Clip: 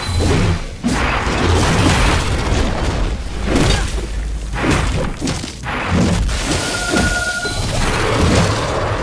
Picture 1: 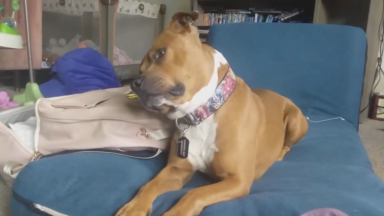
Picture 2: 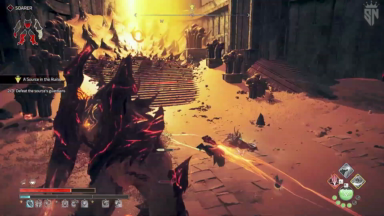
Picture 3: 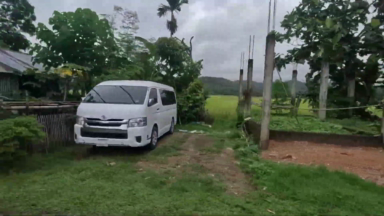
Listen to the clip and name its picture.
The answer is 2